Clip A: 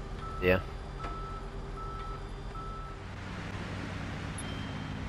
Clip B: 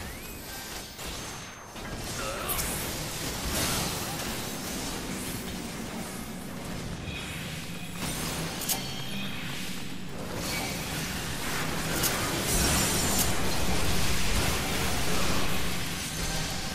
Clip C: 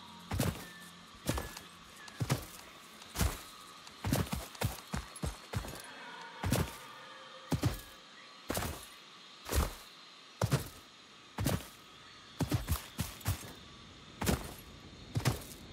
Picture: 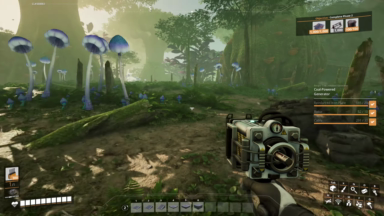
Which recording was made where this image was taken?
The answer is C